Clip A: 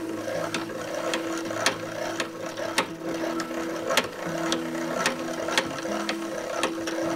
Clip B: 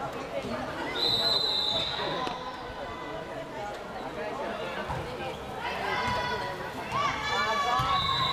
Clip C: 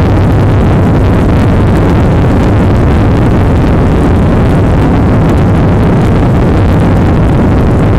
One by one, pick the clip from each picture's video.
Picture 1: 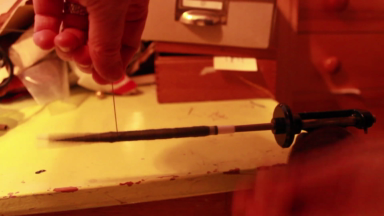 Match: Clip A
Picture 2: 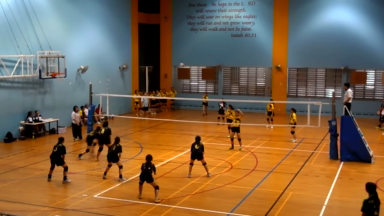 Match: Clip B